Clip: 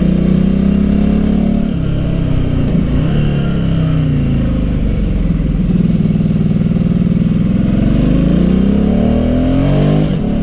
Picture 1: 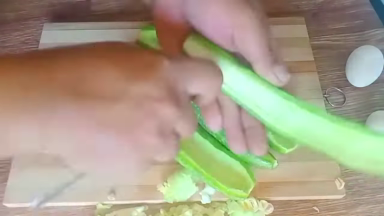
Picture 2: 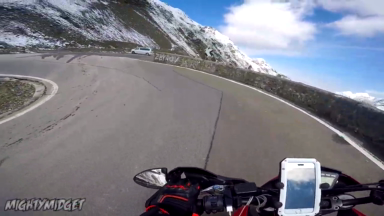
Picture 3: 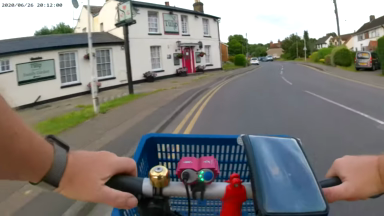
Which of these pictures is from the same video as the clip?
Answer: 2